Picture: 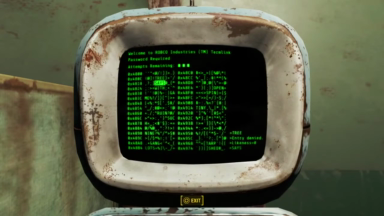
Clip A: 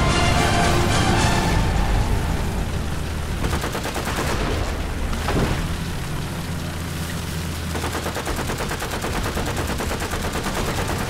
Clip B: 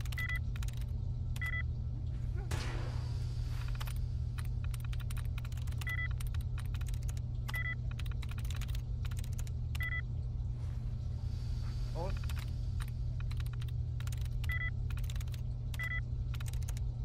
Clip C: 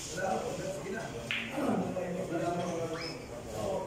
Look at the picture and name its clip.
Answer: B